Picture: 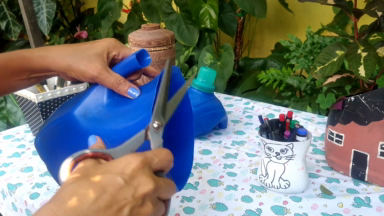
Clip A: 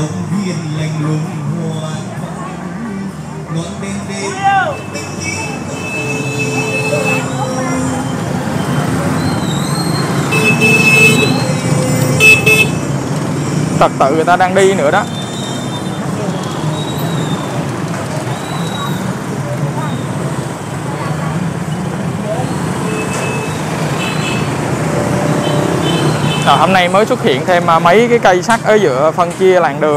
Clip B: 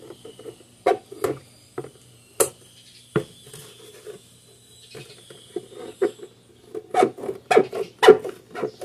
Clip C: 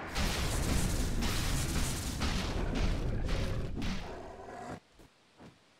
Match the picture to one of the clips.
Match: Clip B